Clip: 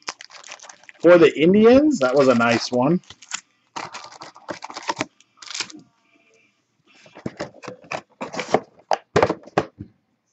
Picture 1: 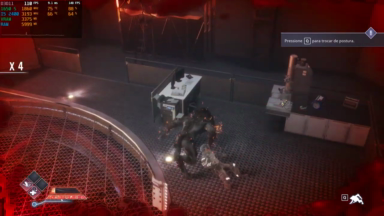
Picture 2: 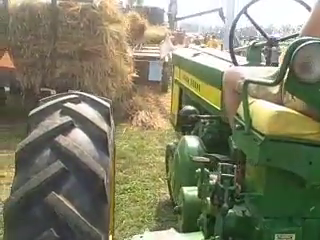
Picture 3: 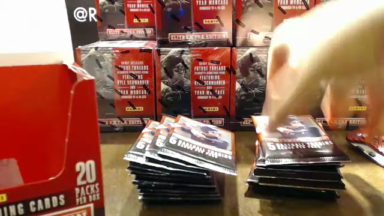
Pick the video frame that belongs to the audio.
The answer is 3